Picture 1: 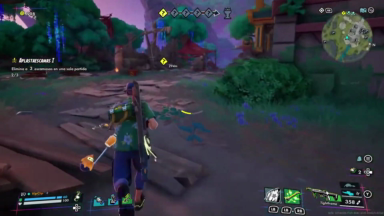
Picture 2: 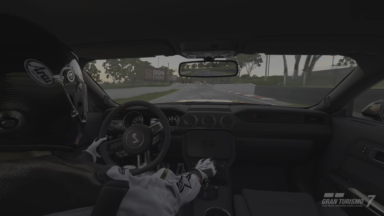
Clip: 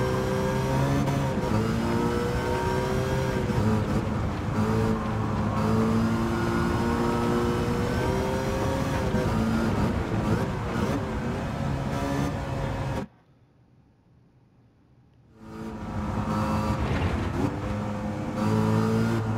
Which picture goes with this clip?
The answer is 2